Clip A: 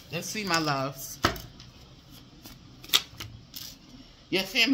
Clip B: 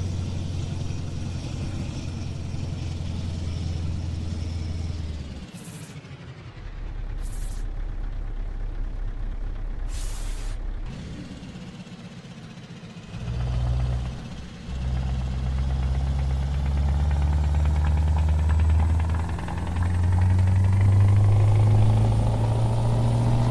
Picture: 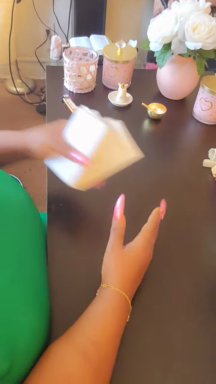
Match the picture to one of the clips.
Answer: A